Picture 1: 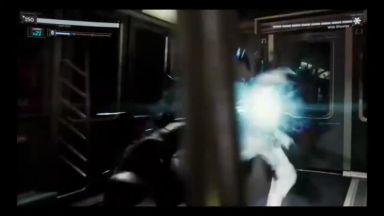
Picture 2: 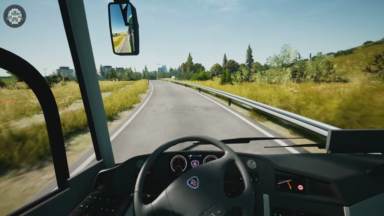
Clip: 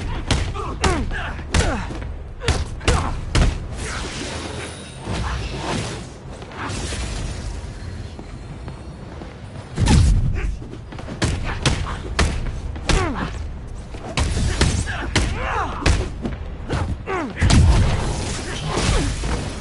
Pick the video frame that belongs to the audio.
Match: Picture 1